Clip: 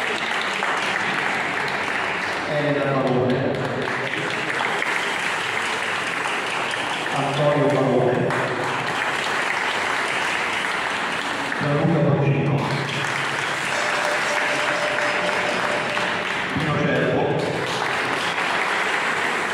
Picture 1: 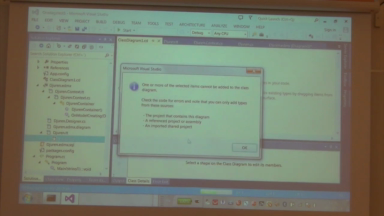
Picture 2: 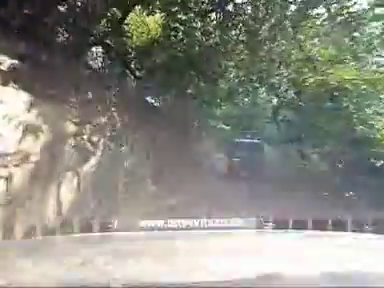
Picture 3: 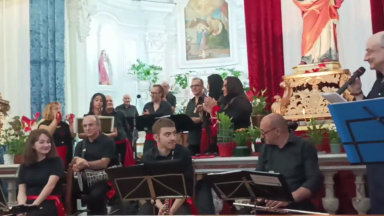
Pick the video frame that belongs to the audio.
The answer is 3